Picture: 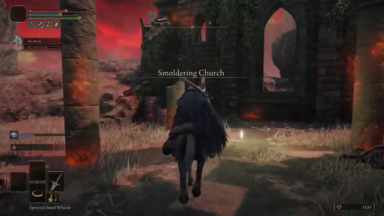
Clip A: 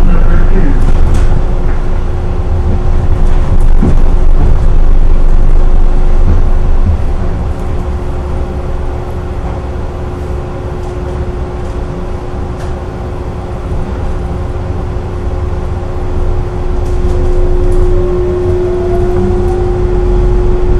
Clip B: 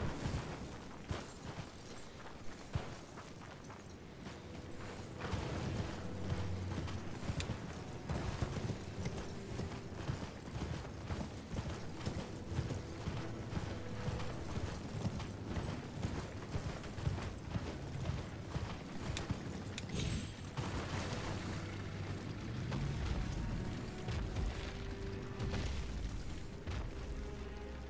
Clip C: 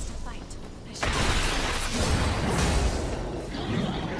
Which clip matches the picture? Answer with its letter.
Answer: B